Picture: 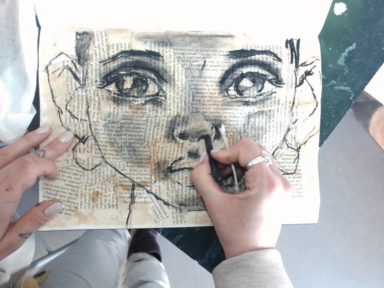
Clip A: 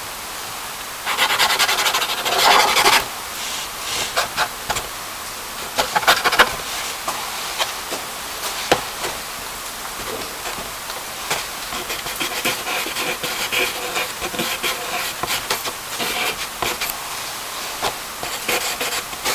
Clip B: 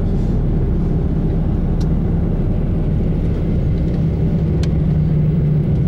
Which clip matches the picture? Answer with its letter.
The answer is A